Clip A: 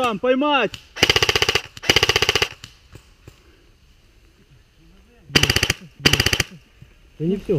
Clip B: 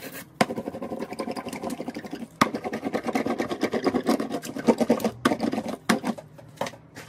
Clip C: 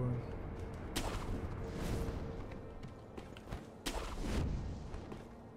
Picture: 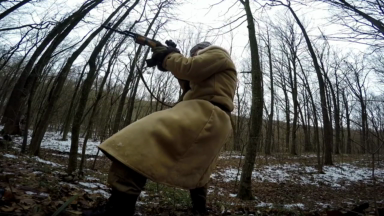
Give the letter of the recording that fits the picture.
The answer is A